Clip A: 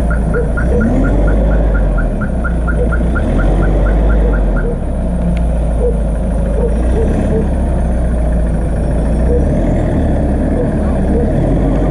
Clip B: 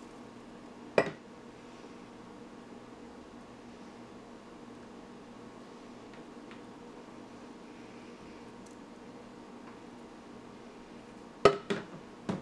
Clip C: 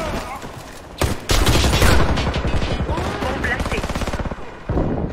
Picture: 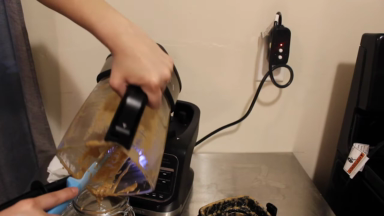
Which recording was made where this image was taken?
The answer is B